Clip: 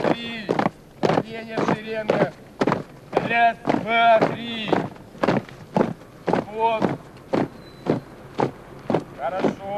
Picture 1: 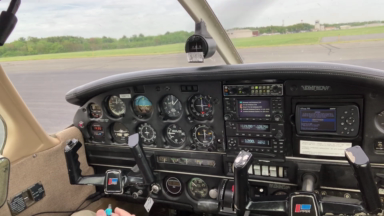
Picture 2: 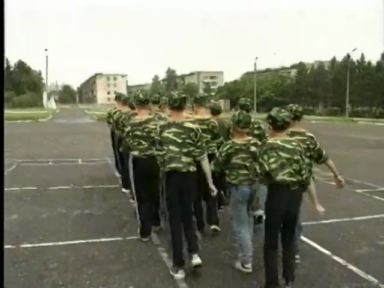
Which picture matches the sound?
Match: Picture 2